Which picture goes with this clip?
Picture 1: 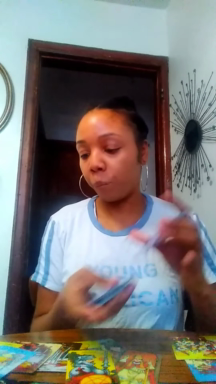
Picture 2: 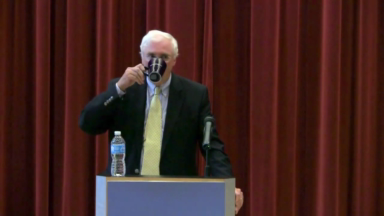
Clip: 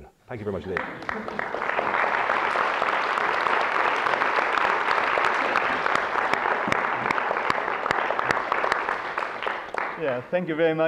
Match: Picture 2